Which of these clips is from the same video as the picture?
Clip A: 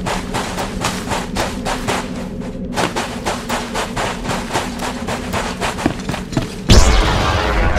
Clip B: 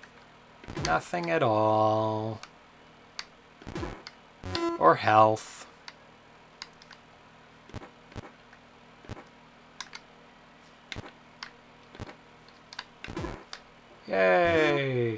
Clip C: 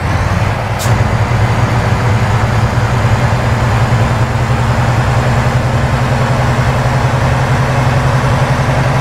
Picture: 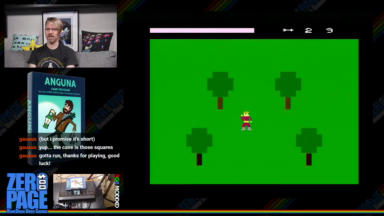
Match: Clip B